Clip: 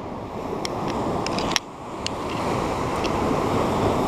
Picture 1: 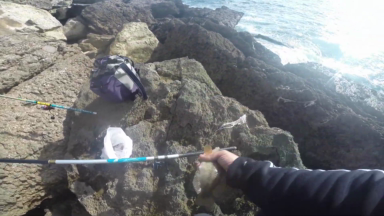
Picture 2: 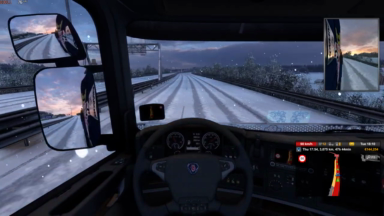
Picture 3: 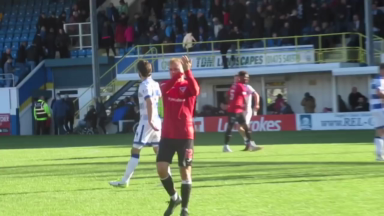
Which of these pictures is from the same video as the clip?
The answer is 1